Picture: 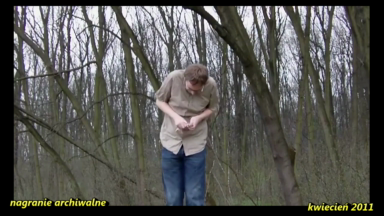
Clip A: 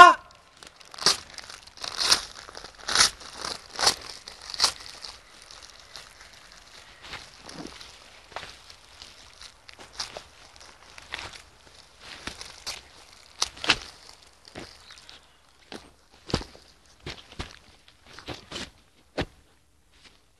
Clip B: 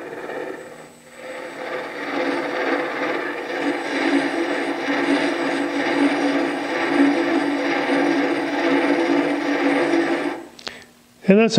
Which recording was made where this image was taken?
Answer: A